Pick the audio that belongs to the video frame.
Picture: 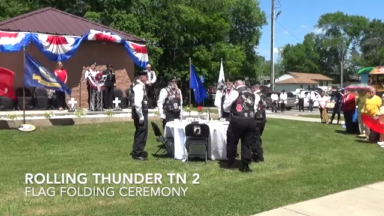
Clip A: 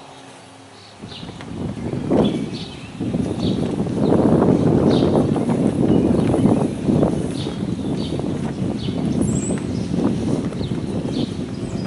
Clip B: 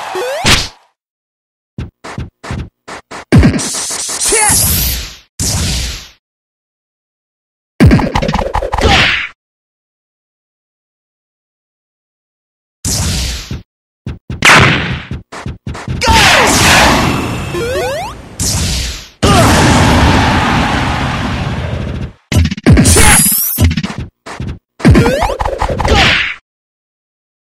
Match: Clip A